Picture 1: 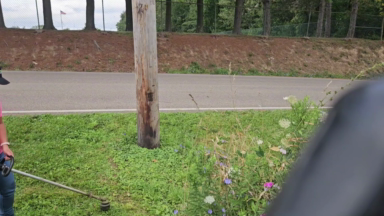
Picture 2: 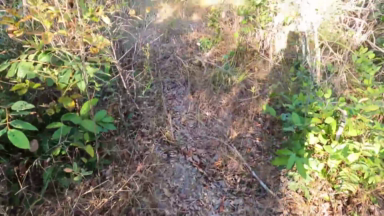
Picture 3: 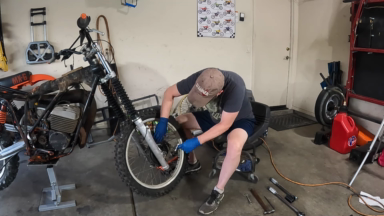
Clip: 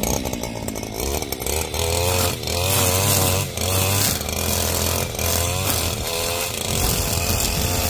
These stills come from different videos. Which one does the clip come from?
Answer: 1